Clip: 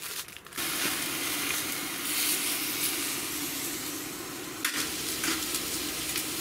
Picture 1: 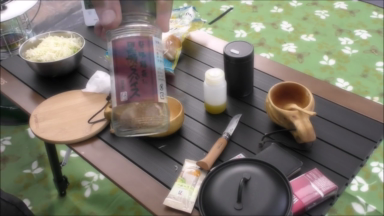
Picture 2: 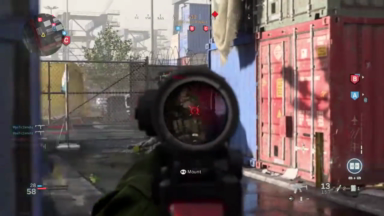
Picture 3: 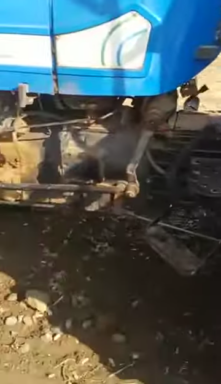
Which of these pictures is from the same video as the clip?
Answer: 1